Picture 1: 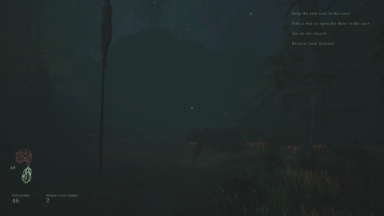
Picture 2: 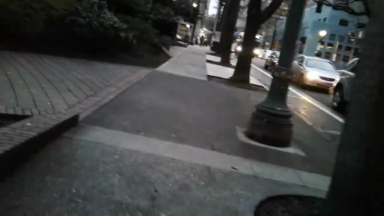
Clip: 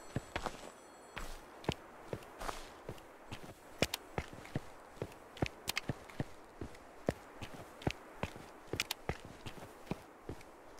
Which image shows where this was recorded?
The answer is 1